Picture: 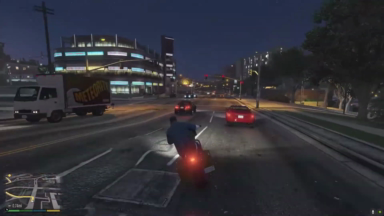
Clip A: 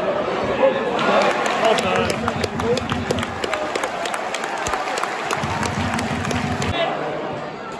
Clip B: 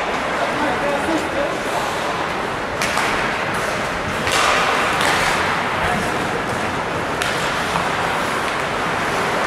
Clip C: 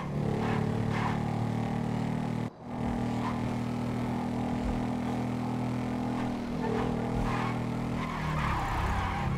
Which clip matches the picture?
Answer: C